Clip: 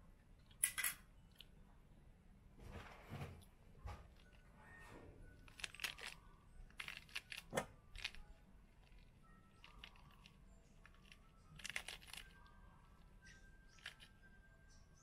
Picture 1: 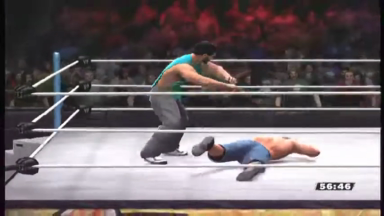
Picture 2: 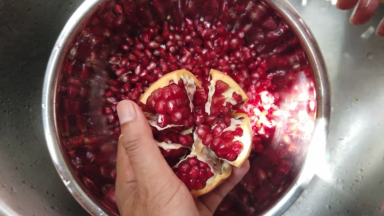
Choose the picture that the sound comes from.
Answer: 2